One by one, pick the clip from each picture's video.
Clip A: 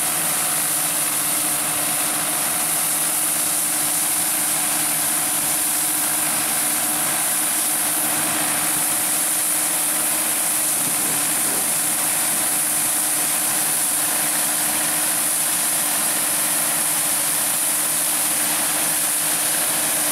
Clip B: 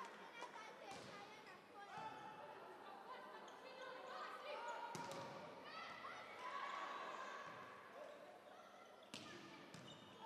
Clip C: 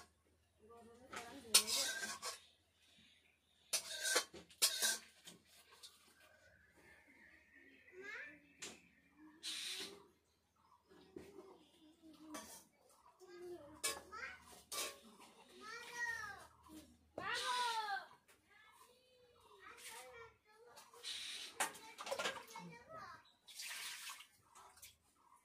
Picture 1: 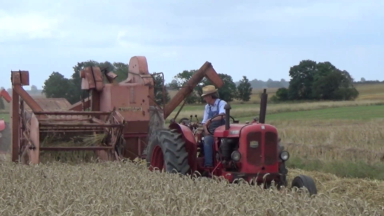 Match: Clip A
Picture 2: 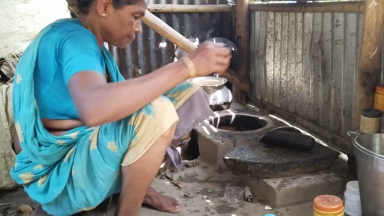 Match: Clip C